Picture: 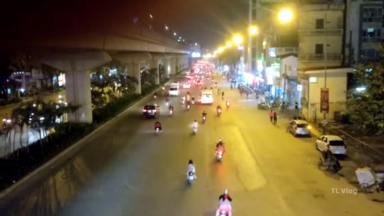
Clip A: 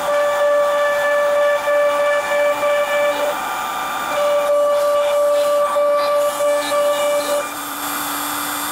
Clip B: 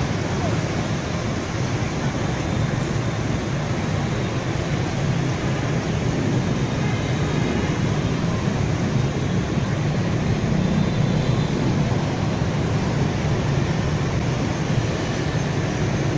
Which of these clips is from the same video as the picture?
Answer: B